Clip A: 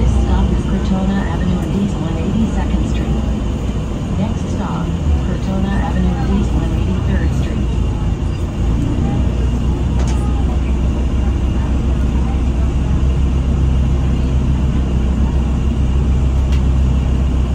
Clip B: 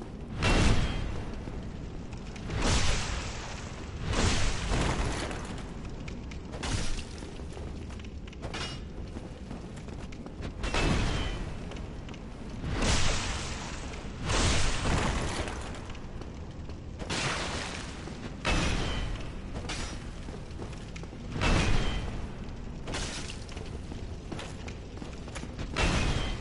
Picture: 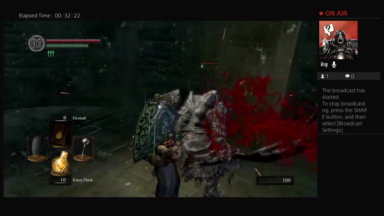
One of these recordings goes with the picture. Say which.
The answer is B